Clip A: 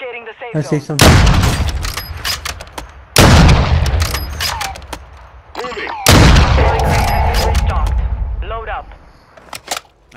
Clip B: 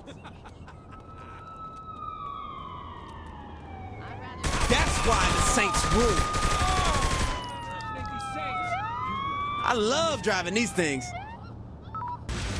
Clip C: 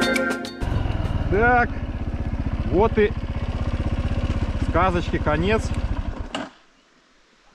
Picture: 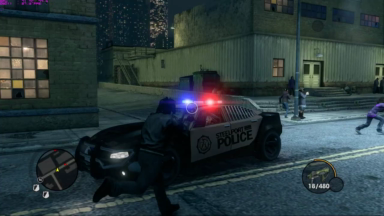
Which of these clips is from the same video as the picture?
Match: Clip B